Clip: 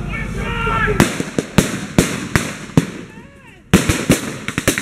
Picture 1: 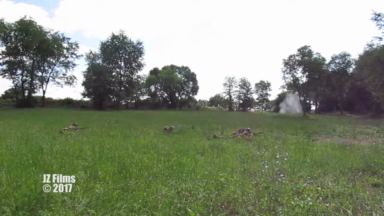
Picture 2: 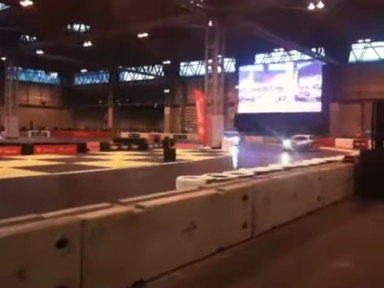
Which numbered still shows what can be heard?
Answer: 1